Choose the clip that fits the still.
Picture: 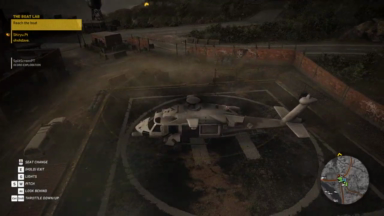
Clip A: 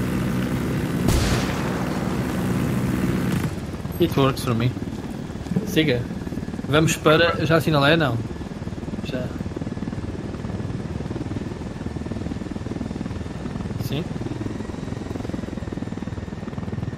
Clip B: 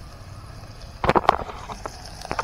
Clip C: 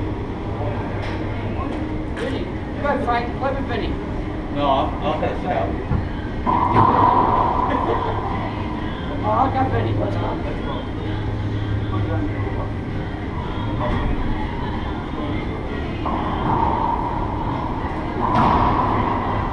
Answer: A